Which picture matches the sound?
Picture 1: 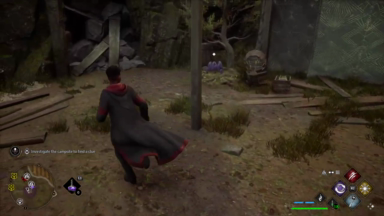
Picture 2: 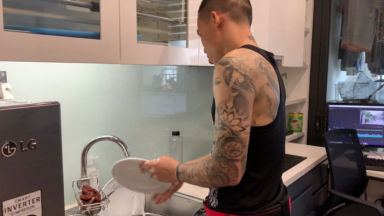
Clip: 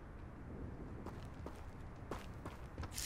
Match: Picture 1